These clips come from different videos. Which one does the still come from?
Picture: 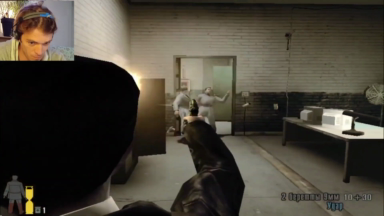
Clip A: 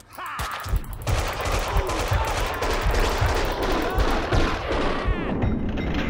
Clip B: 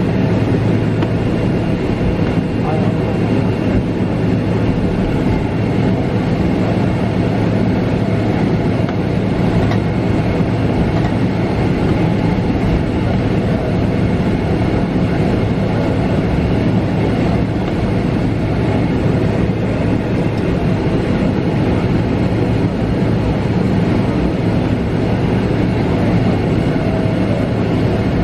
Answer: A